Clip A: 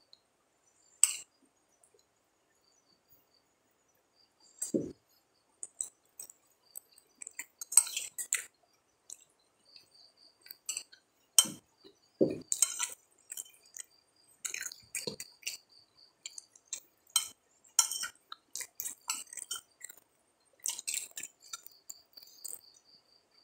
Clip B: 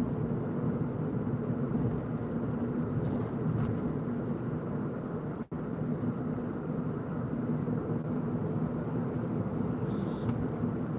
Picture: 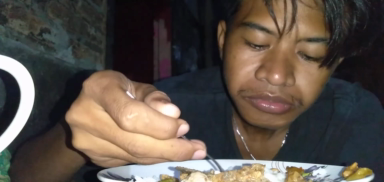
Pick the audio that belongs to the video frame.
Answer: A